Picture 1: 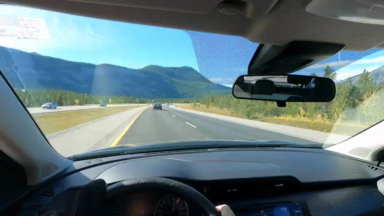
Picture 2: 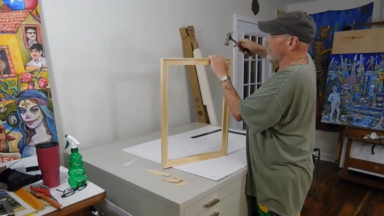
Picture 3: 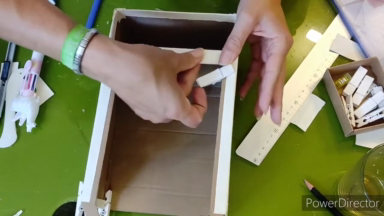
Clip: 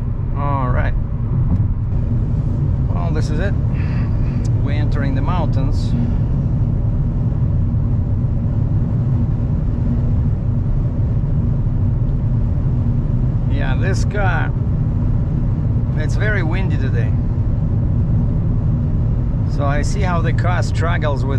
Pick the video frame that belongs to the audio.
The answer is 1